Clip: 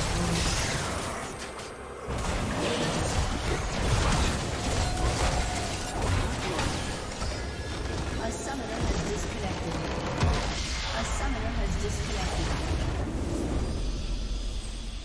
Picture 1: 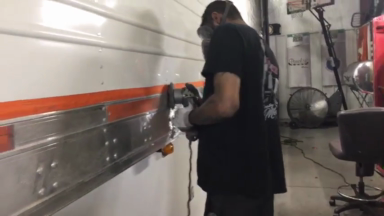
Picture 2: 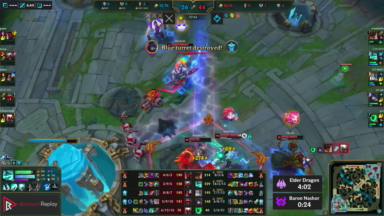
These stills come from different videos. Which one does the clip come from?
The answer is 2